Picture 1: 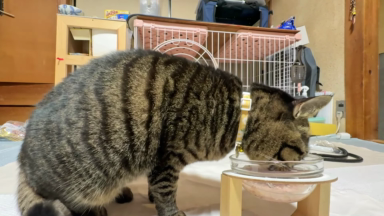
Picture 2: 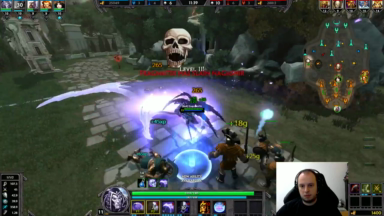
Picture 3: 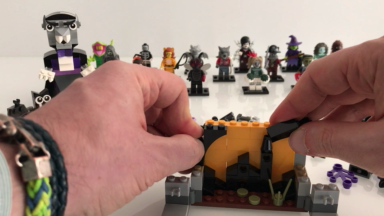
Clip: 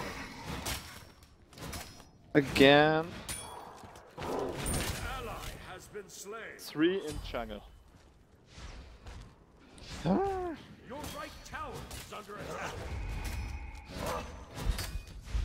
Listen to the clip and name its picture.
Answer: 2